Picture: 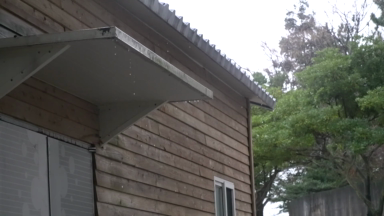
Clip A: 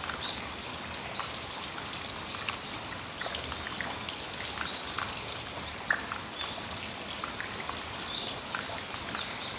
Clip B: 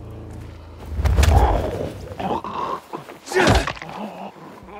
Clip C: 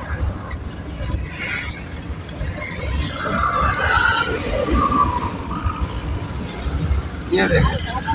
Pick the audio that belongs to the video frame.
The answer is A